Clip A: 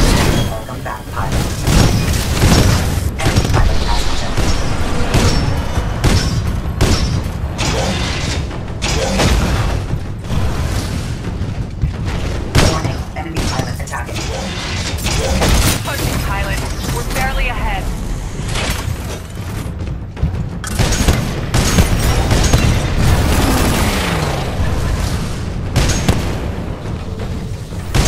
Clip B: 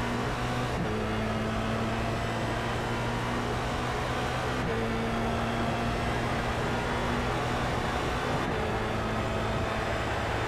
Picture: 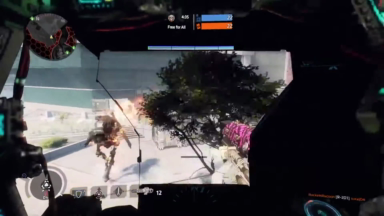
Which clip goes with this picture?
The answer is A